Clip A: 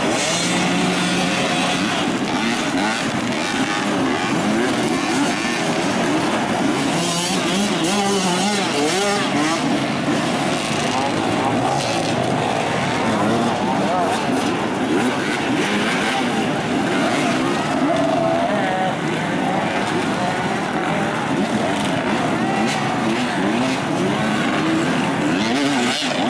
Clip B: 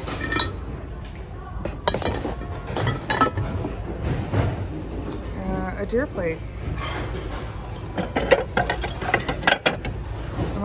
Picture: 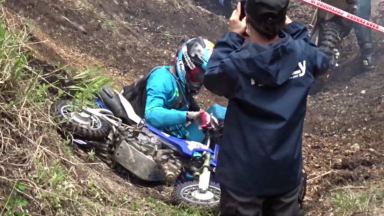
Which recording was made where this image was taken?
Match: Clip A